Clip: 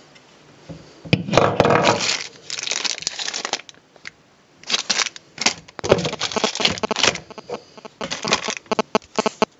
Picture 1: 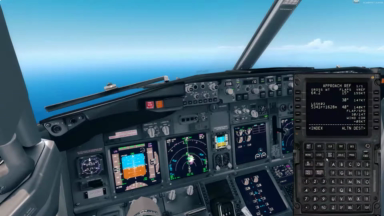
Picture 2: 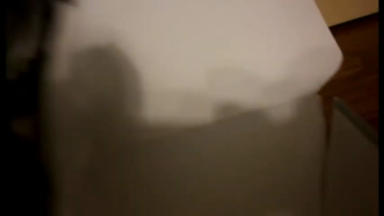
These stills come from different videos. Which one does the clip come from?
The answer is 2